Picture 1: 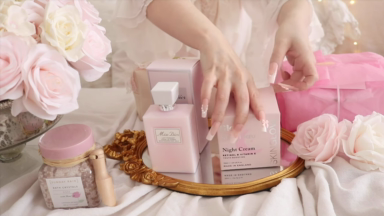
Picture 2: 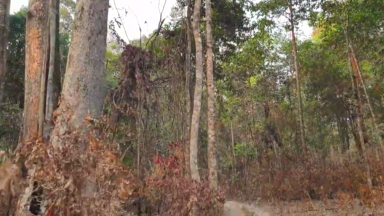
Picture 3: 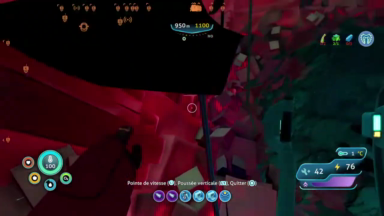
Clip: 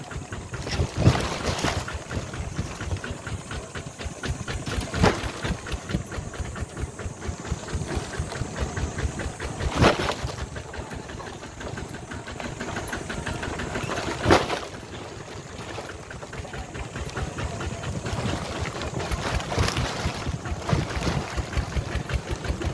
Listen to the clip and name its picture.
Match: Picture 2